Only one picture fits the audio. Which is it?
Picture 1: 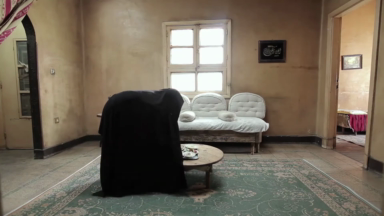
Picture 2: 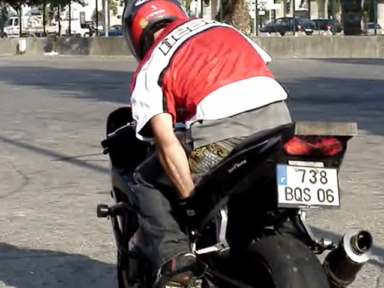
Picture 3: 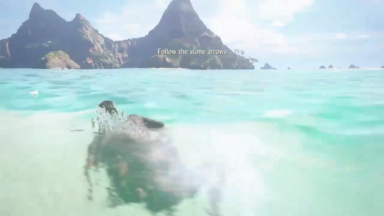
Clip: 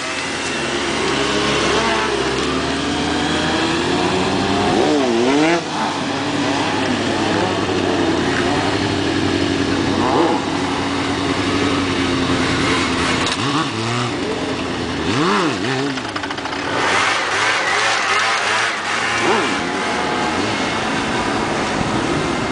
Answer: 2